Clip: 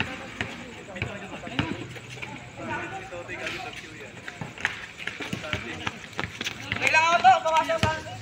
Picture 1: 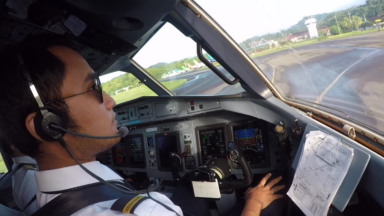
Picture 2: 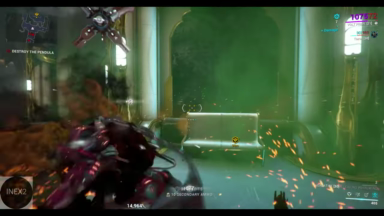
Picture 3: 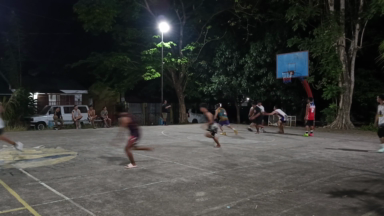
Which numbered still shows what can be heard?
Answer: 3